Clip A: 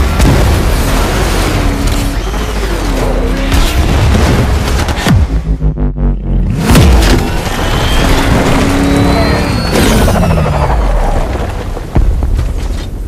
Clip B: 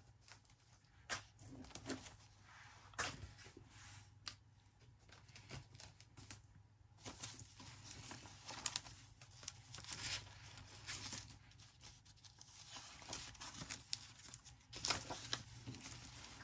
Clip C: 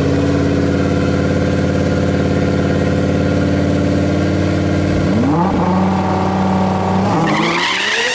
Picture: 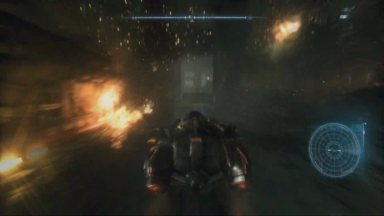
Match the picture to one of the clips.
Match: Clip A